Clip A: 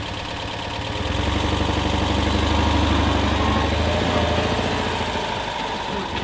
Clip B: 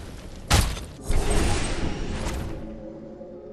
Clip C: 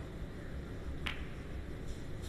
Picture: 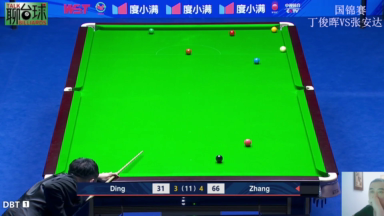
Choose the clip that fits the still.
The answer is C